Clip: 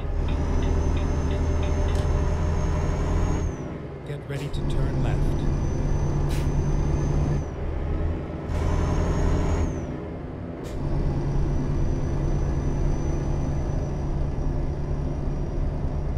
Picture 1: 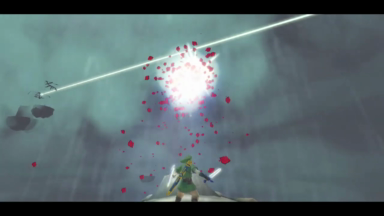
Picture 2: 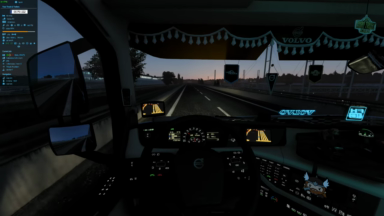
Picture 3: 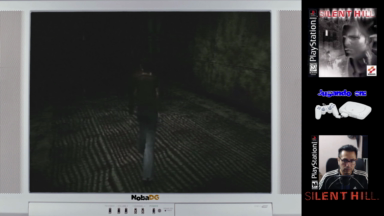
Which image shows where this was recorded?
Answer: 2